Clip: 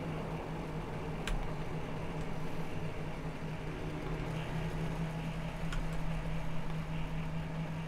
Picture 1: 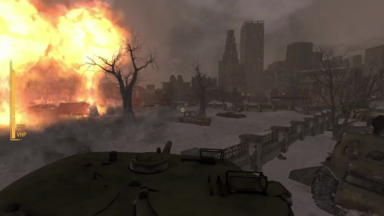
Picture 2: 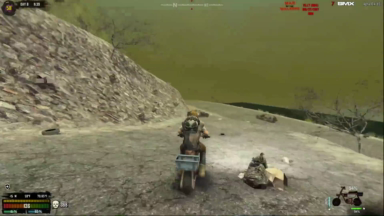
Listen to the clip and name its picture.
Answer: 2